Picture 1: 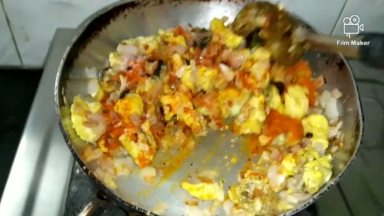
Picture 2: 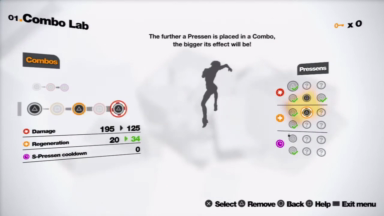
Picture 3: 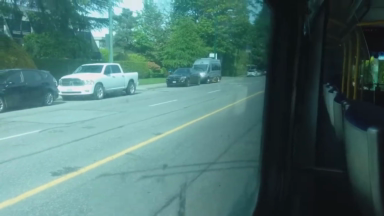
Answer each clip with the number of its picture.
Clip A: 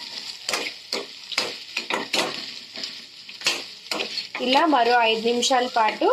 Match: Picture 1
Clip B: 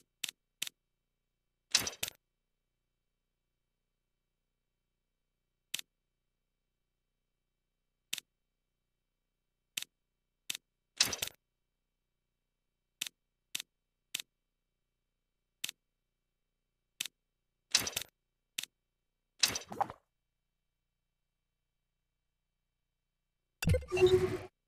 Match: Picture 2